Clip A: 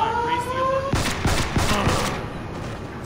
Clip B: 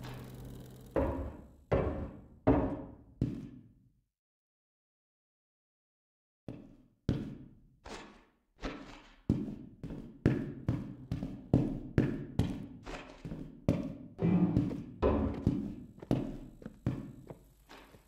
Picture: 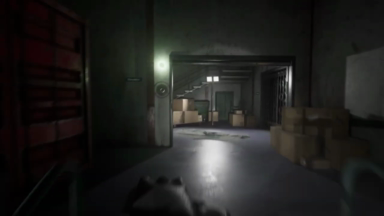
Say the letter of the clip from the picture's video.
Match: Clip B